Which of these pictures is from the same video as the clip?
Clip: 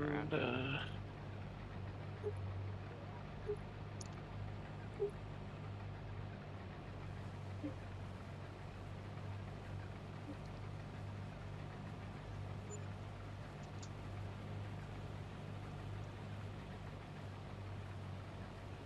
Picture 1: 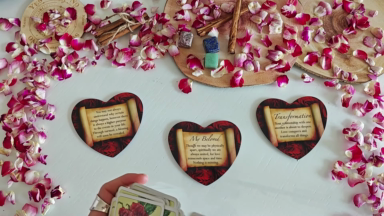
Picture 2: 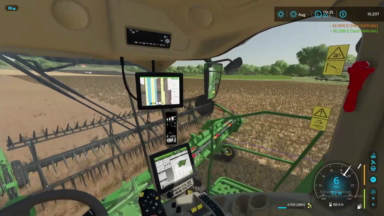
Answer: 2